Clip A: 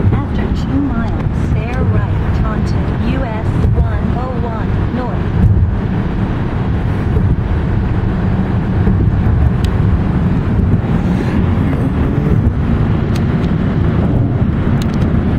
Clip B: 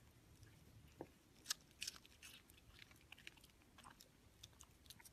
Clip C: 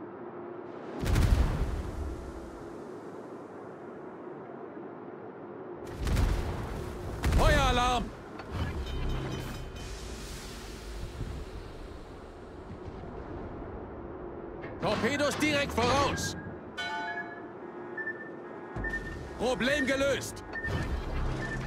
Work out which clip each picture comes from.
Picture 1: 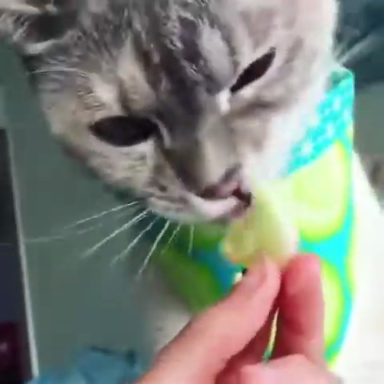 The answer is B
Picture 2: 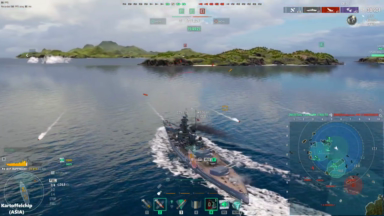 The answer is C